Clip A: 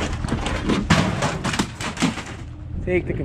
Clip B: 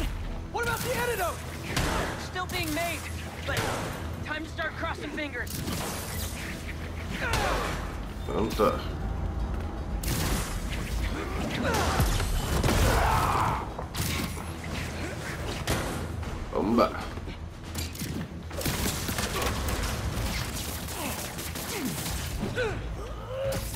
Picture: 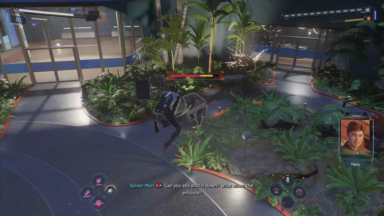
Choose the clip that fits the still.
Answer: B